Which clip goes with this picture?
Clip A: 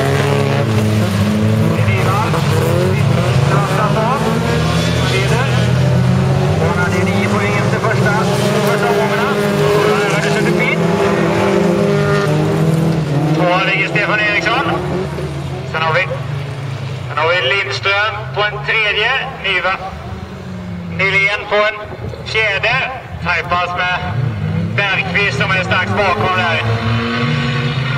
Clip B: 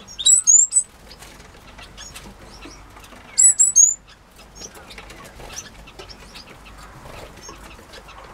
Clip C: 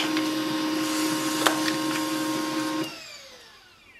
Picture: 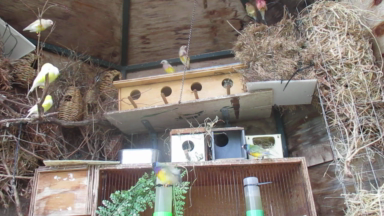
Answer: B